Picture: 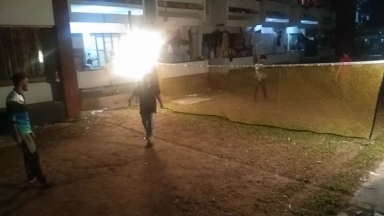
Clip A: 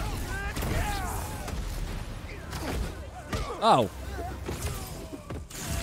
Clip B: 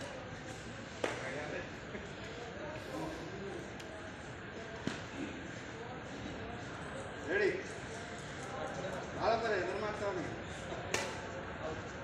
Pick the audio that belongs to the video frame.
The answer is B